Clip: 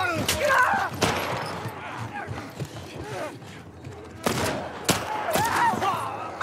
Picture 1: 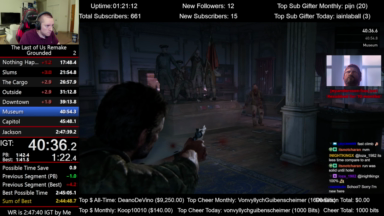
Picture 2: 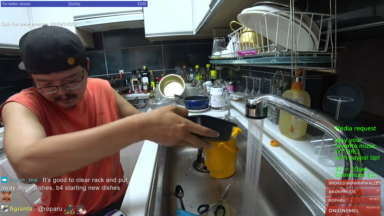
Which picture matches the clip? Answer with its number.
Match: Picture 1